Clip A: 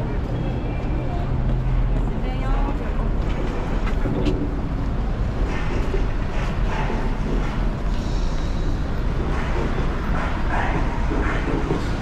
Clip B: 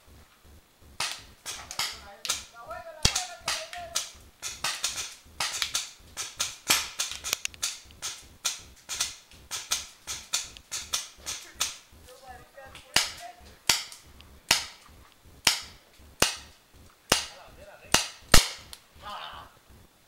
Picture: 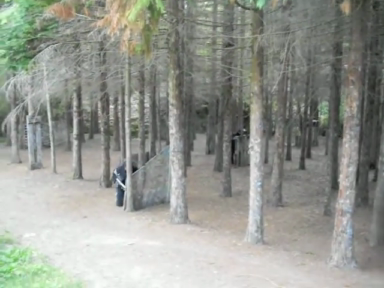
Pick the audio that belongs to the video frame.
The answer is B